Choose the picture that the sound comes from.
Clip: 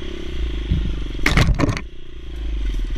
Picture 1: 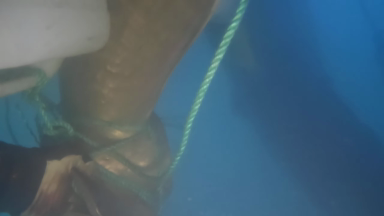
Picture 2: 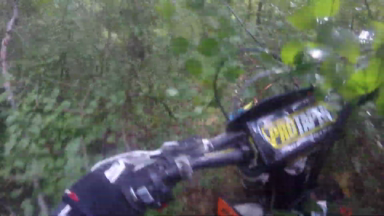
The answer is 2